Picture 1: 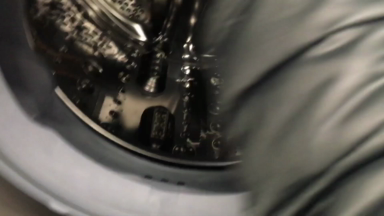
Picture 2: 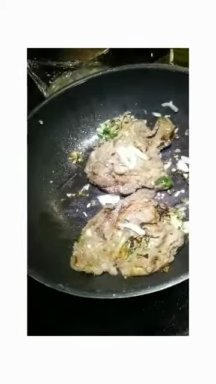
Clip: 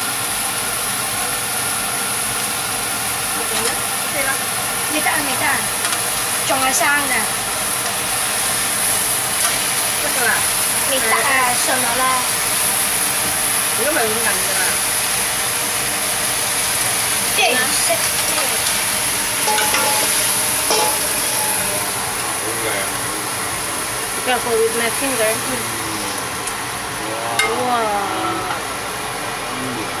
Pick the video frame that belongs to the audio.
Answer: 2